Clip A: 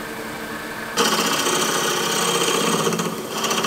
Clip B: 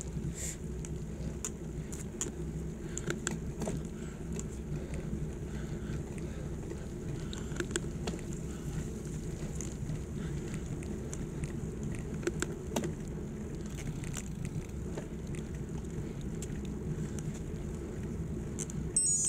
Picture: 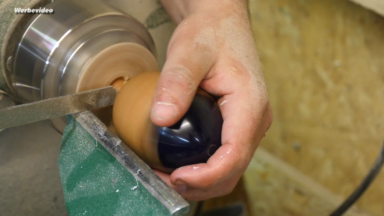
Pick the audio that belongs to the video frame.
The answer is A